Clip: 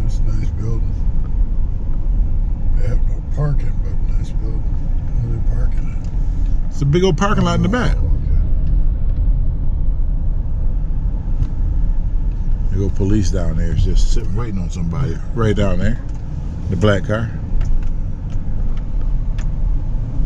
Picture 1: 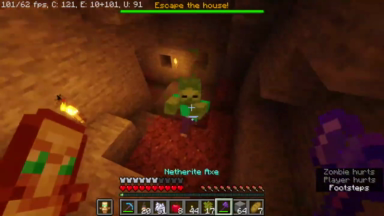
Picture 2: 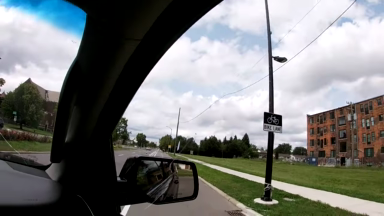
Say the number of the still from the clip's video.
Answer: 2